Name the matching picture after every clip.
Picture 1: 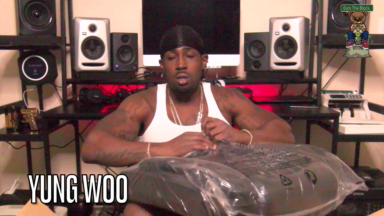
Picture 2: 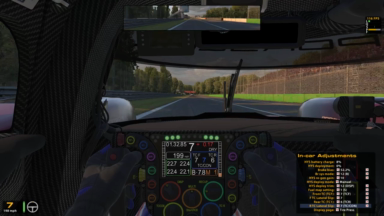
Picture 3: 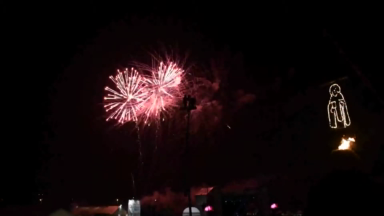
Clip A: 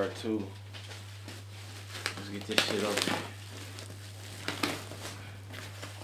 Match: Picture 1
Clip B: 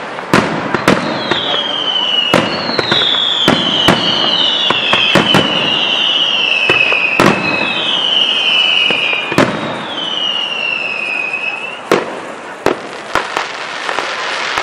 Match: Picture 3